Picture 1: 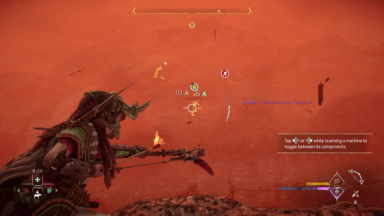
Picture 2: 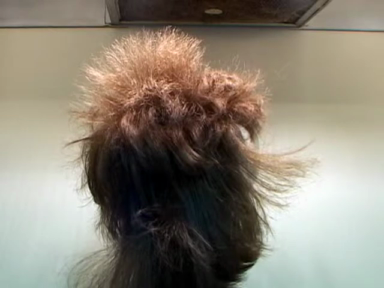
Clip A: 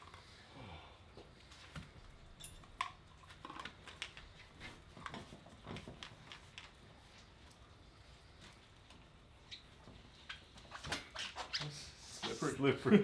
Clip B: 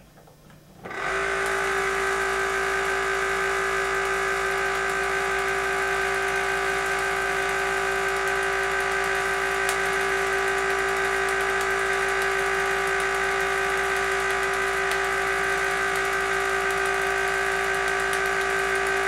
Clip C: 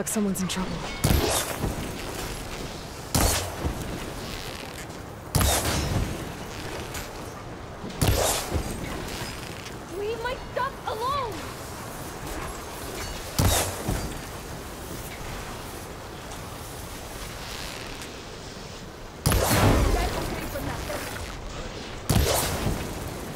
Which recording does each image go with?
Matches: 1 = C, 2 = B